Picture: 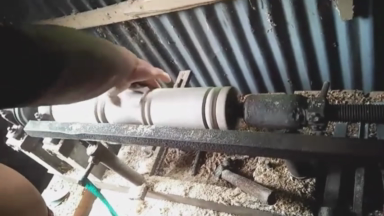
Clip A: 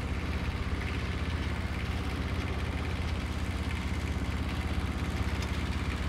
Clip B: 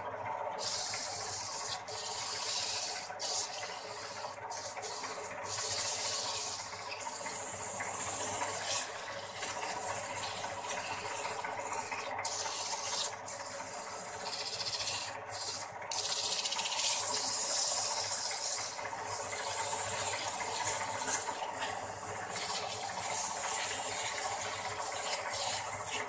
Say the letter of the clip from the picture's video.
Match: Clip B